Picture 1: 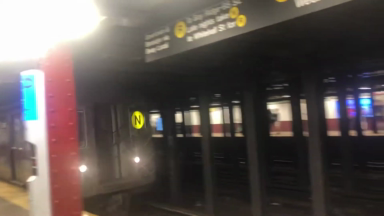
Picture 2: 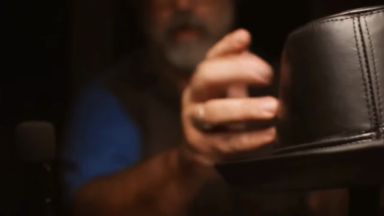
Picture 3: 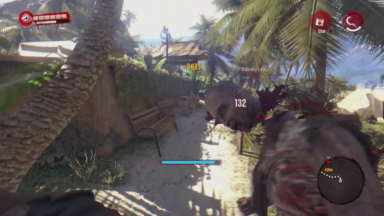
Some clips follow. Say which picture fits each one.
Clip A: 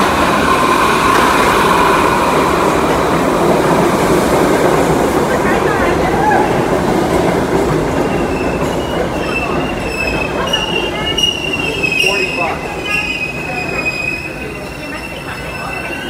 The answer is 1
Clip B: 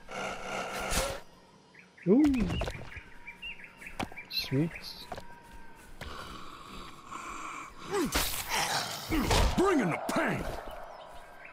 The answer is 3